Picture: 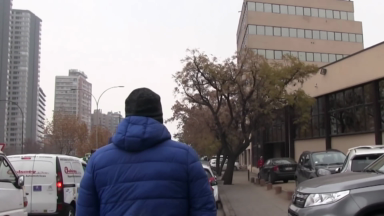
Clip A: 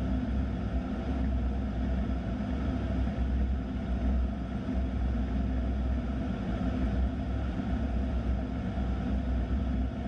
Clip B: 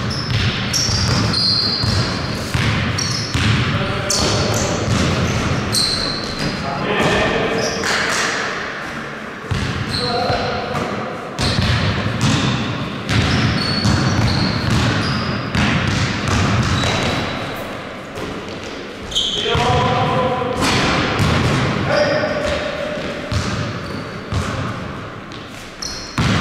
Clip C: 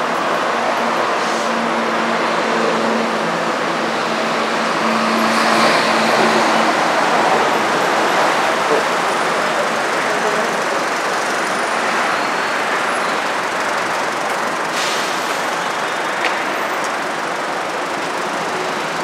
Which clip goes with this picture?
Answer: C